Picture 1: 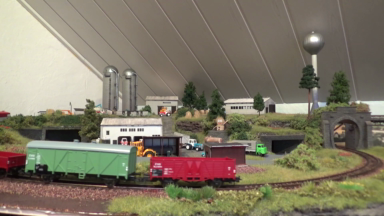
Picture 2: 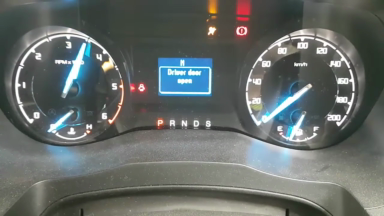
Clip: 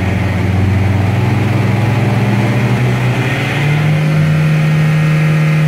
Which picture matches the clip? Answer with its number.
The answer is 2